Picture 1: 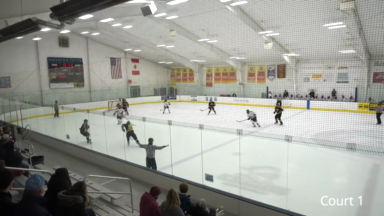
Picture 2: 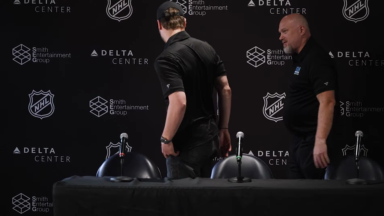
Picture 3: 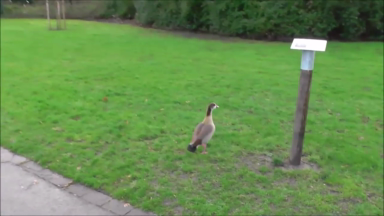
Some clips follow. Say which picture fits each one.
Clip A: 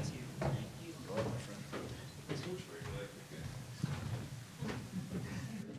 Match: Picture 2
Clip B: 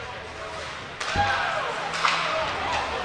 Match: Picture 1